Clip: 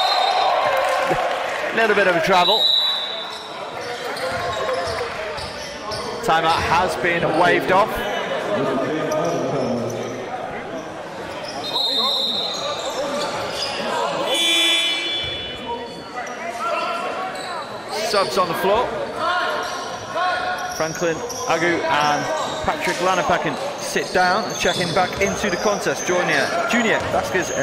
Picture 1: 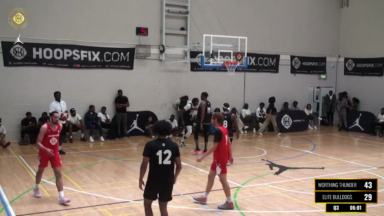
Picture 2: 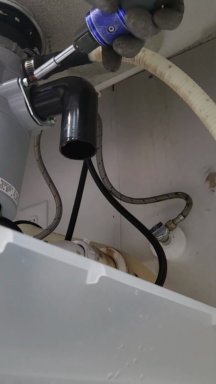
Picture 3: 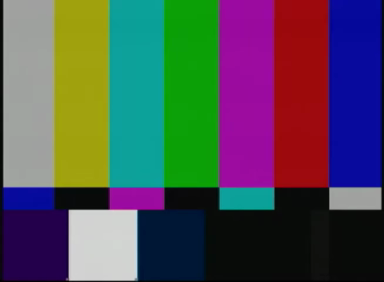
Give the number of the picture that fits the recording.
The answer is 1